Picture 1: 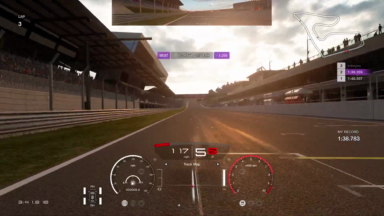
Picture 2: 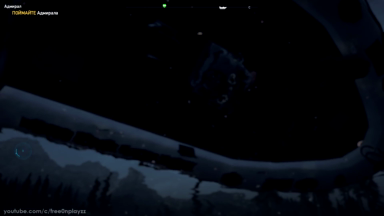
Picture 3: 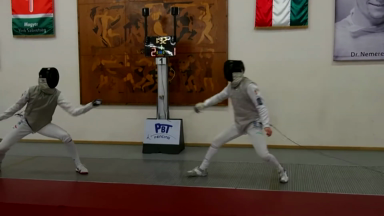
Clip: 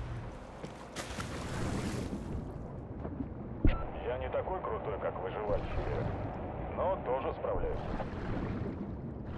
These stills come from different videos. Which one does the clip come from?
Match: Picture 2